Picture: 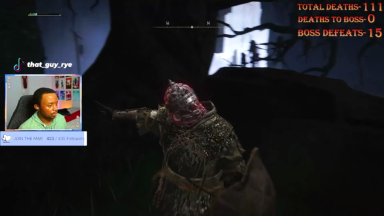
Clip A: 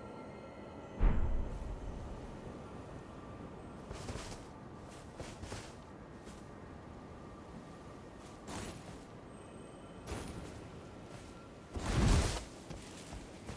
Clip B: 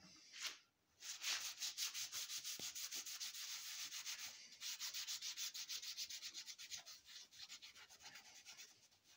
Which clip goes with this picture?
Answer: A